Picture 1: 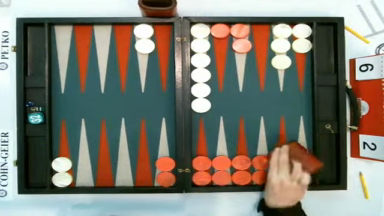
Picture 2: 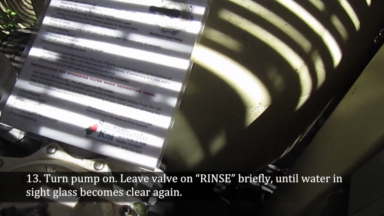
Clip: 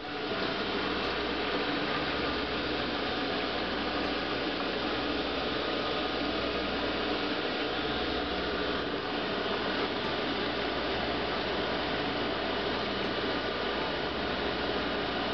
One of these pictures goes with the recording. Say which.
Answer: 2